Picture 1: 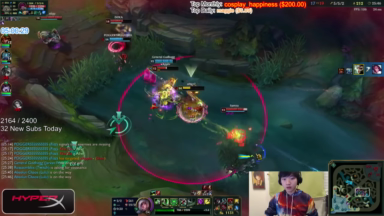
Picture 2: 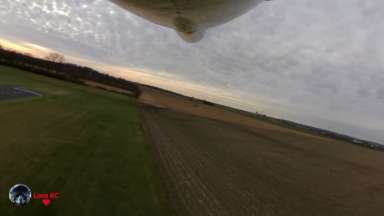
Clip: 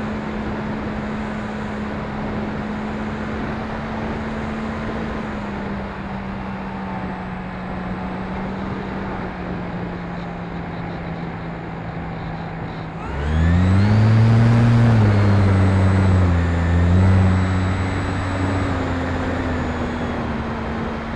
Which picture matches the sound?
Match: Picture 2